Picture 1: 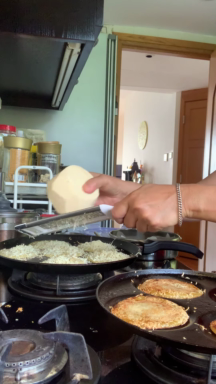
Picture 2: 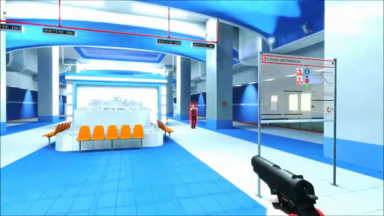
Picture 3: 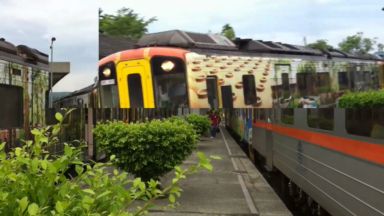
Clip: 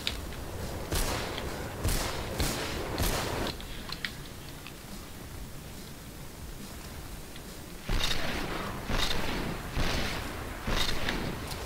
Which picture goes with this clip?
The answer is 2